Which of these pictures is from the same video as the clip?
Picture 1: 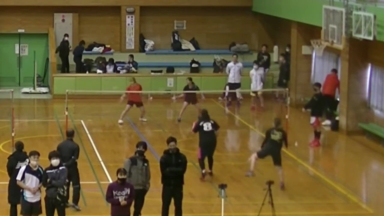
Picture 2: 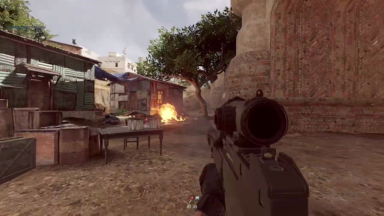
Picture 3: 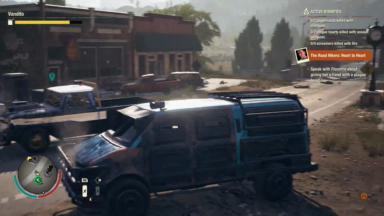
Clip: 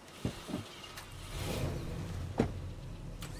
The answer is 3